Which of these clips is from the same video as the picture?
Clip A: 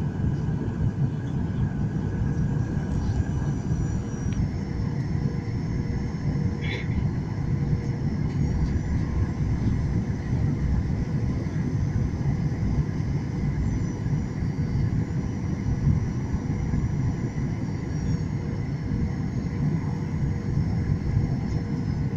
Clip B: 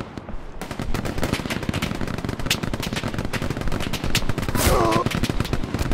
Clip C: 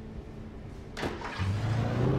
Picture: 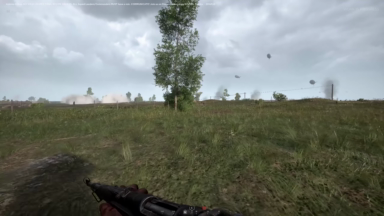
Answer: B